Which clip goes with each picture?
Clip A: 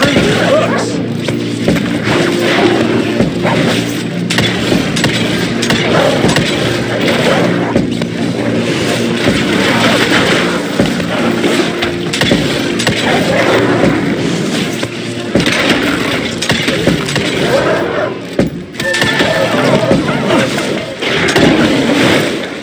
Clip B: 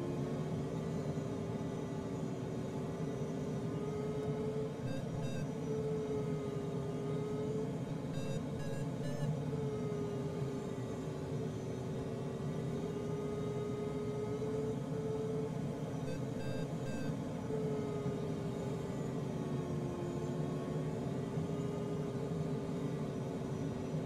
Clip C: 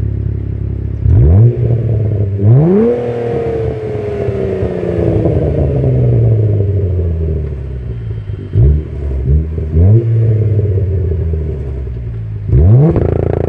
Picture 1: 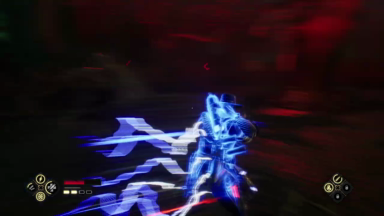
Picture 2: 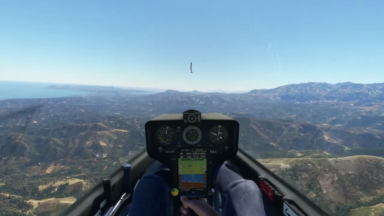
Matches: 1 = A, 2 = B